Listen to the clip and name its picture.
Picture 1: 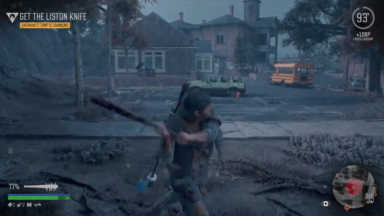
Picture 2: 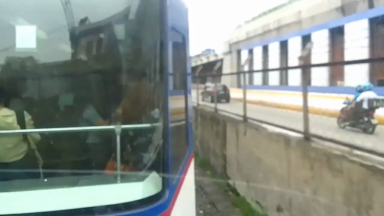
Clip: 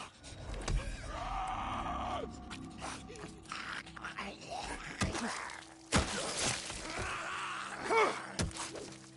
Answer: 1